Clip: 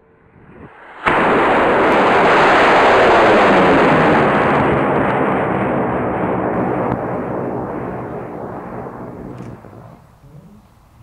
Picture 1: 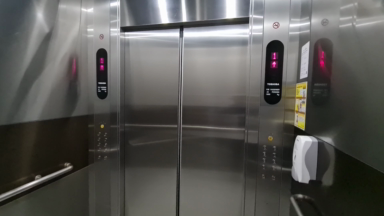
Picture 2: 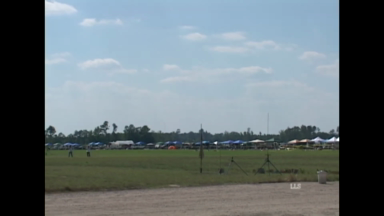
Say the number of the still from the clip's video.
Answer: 2